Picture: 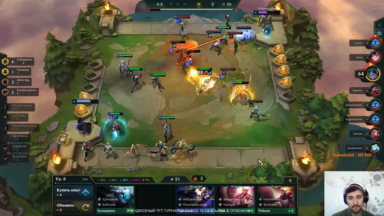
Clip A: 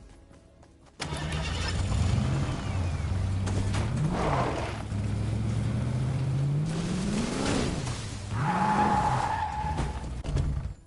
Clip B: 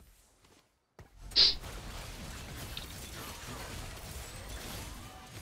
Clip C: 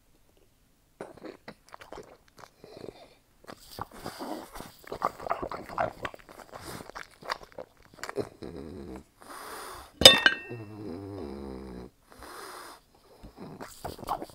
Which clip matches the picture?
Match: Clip B